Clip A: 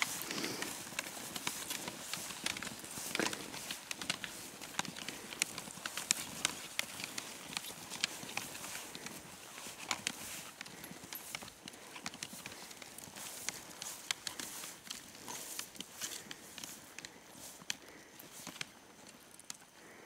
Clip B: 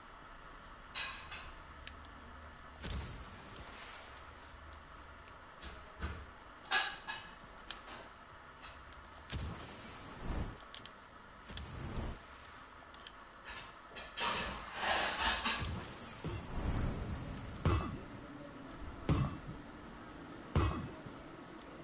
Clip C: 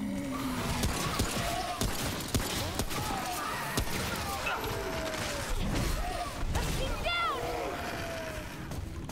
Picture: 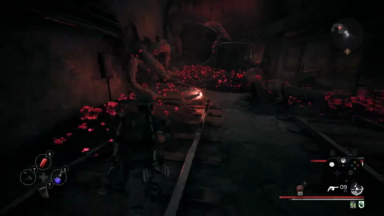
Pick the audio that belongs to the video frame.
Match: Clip C